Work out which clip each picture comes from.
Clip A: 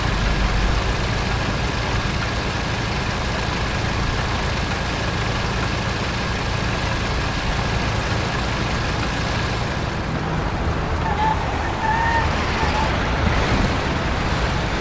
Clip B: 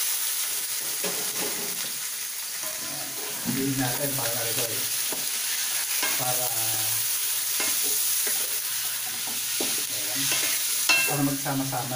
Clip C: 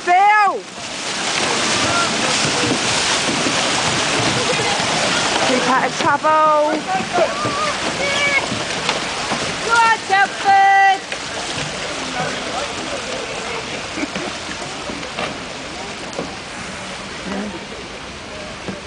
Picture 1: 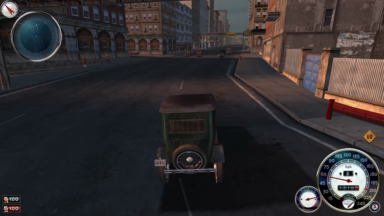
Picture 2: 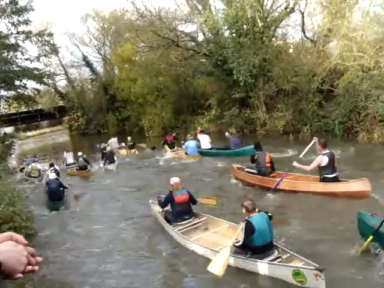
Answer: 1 A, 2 C